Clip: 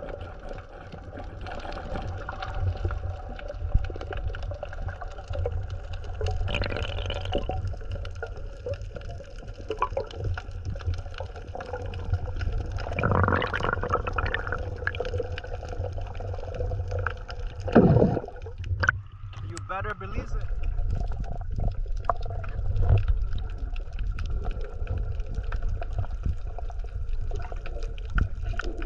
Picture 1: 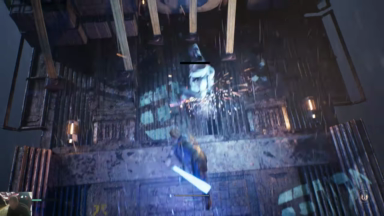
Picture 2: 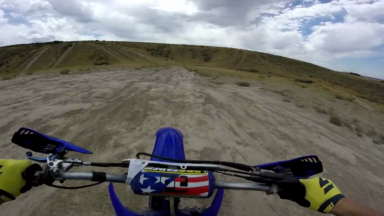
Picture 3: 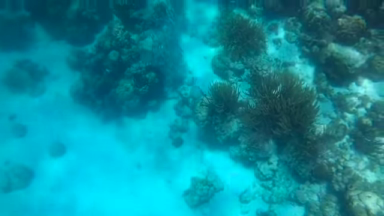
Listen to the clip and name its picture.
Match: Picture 3